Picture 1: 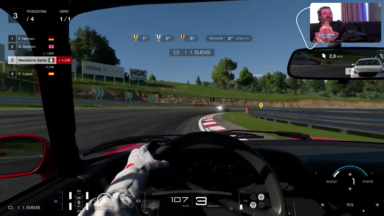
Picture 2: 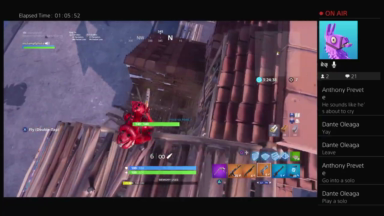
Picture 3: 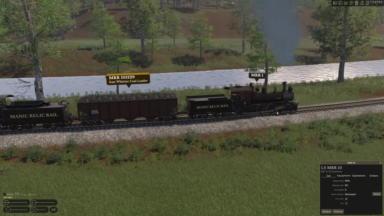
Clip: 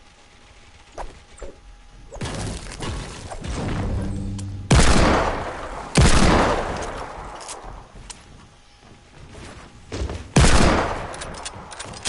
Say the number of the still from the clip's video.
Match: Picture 2